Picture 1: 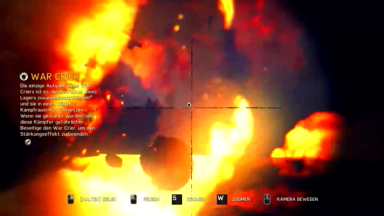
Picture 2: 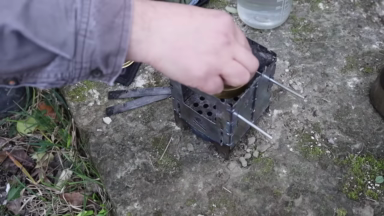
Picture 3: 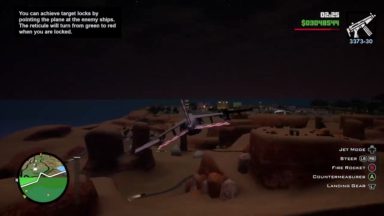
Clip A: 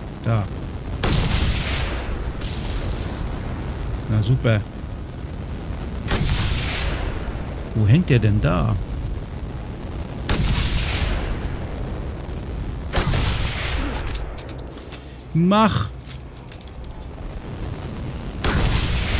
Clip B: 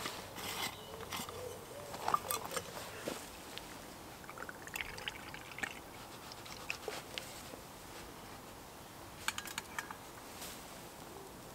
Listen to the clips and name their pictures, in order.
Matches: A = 1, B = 2